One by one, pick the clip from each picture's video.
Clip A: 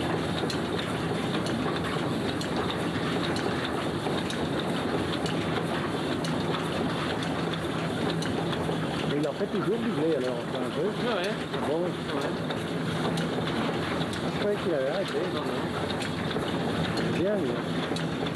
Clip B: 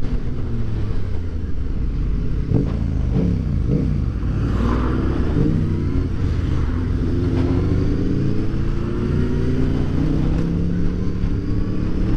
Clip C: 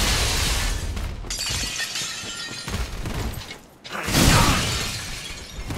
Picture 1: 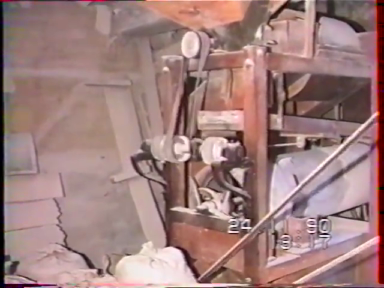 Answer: A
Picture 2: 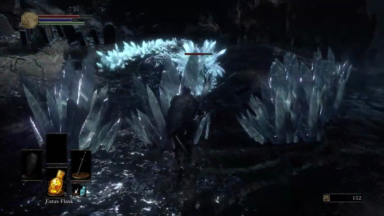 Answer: C